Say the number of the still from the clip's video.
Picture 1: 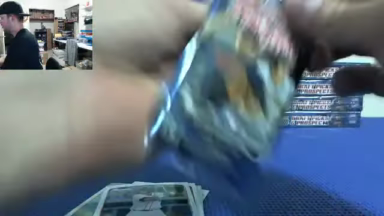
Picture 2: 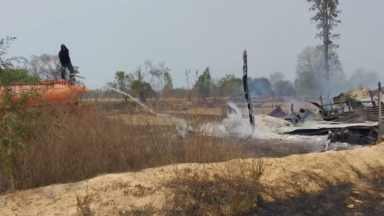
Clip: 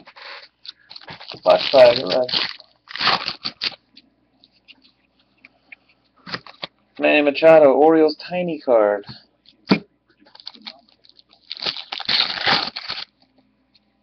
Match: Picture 1